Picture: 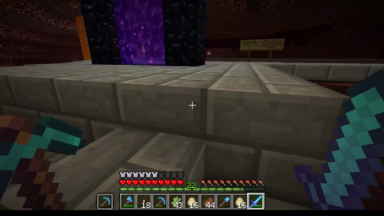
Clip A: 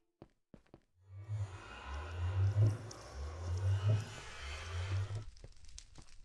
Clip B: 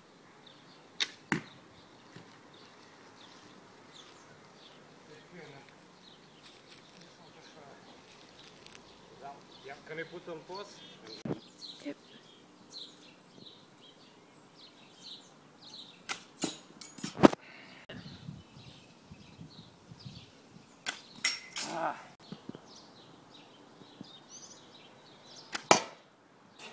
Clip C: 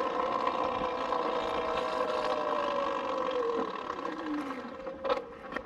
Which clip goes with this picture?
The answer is A